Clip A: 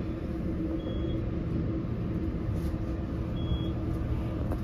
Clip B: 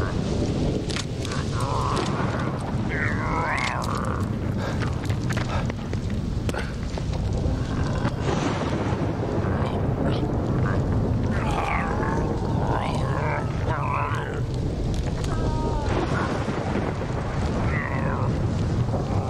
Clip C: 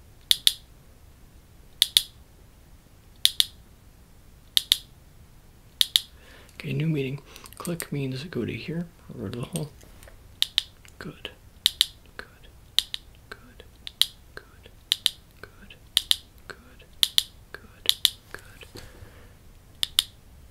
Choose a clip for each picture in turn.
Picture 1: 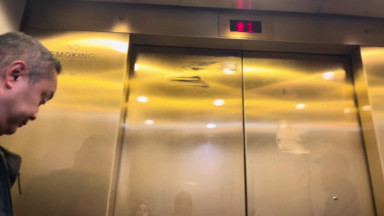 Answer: A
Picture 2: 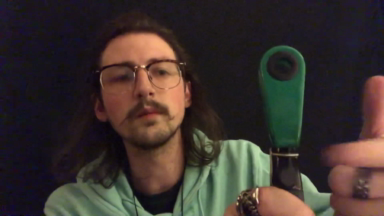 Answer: C